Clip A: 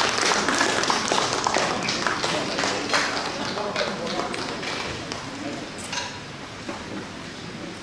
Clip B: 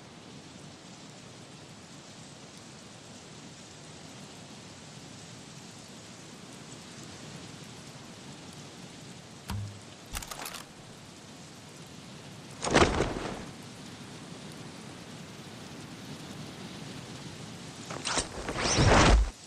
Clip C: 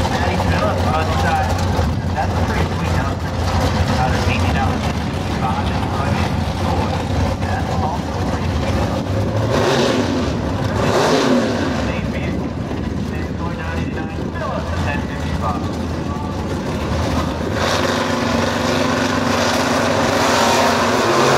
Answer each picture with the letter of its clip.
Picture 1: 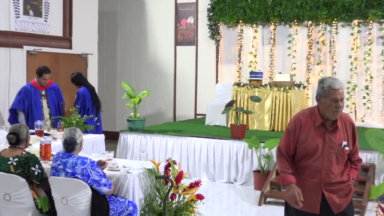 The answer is A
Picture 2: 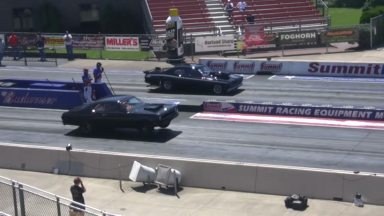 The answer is C